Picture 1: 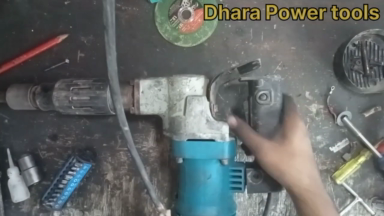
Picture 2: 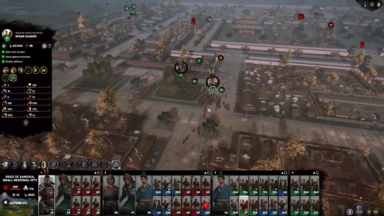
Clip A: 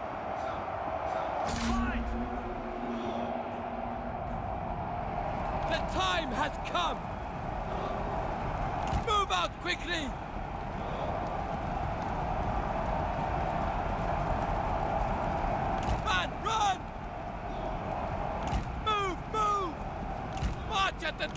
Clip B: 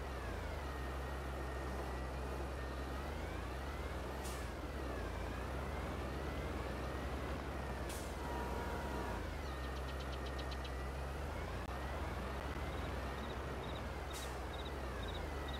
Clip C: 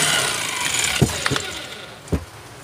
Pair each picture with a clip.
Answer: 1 C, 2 A